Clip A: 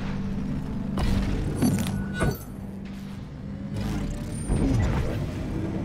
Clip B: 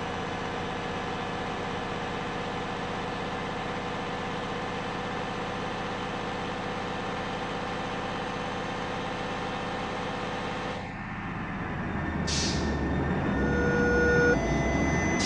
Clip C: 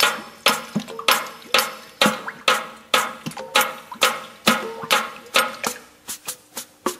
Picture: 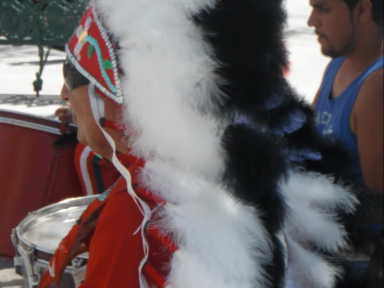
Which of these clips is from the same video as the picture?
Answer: C